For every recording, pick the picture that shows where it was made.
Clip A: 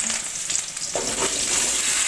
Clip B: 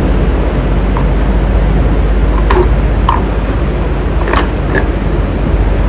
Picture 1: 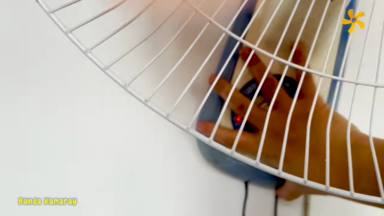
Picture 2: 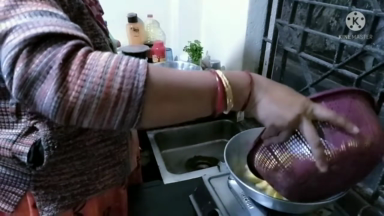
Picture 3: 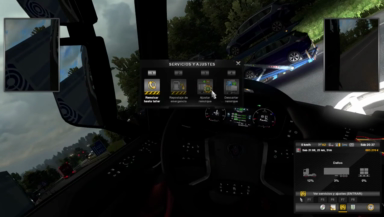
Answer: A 2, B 1